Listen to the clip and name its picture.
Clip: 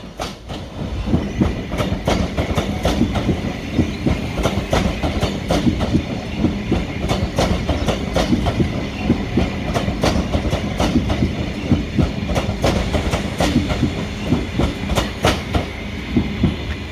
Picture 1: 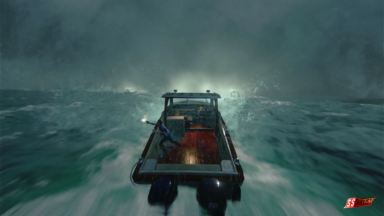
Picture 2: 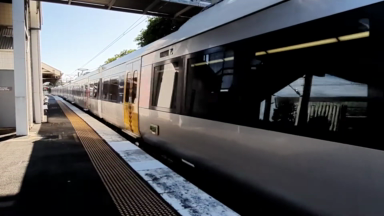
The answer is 2